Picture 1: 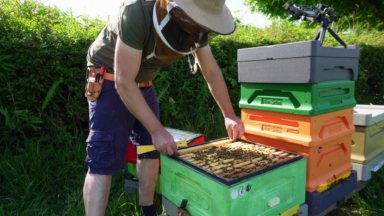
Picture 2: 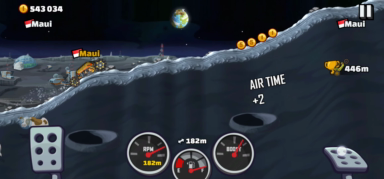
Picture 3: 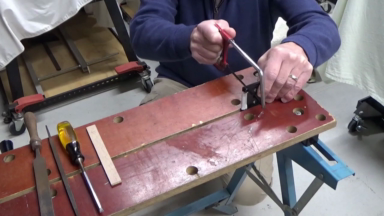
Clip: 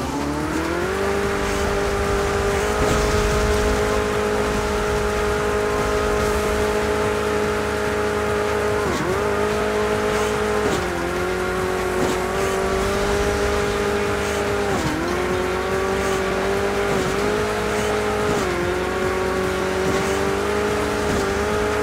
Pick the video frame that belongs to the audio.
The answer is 2